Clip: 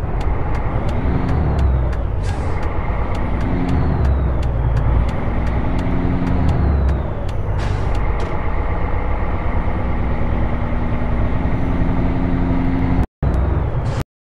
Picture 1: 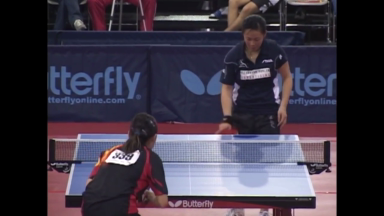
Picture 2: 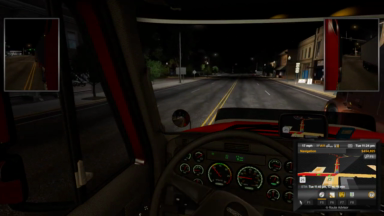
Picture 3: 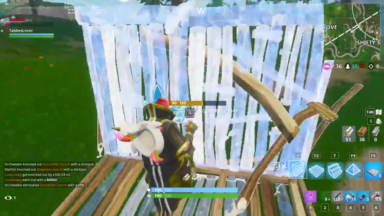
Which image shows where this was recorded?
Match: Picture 2